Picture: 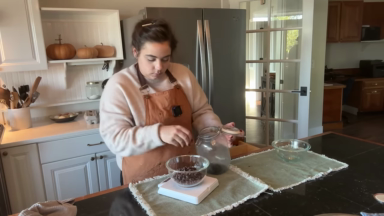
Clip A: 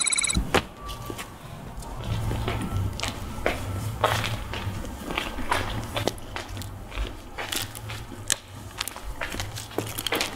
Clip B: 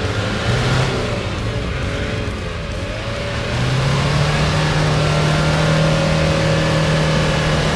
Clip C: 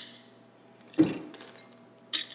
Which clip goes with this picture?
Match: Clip C